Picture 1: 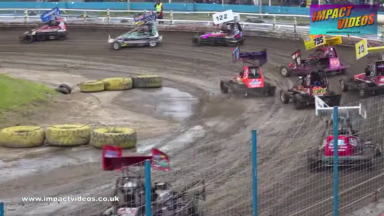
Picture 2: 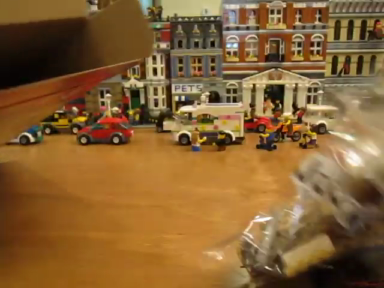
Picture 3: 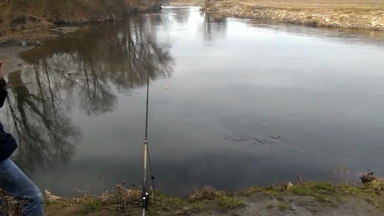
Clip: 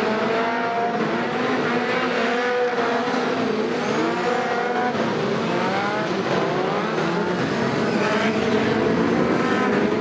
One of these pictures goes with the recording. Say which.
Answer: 1